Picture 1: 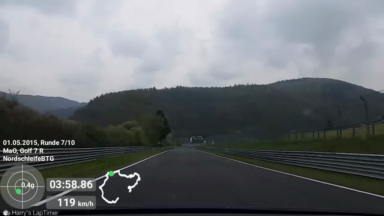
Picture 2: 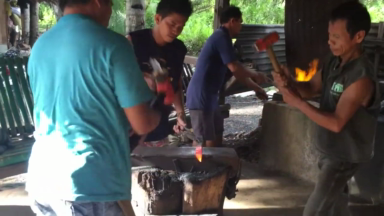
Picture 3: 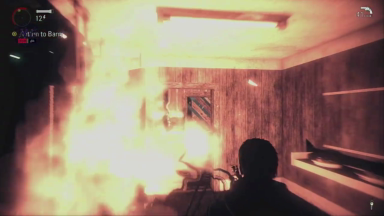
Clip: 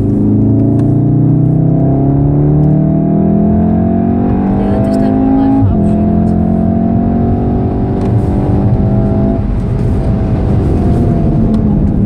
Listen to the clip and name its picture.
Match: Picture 1